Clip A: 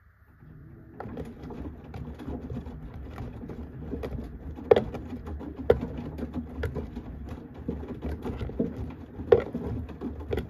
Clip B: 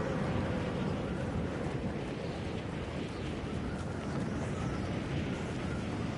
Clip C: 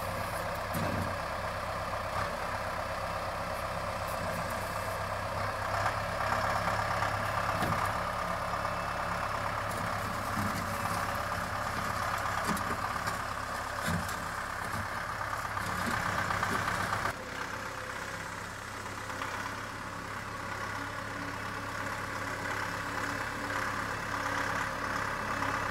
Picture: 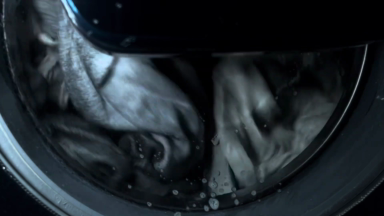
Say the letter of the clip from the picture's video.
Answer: A